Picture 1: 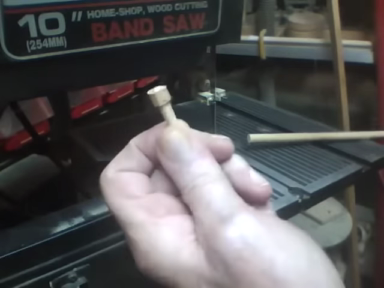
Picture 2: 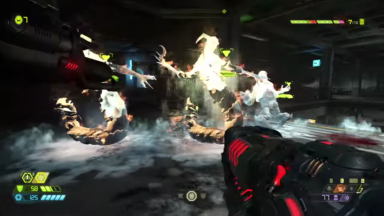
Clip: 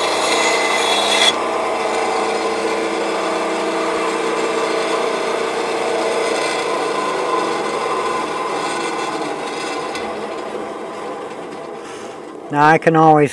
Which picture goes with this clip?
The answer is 1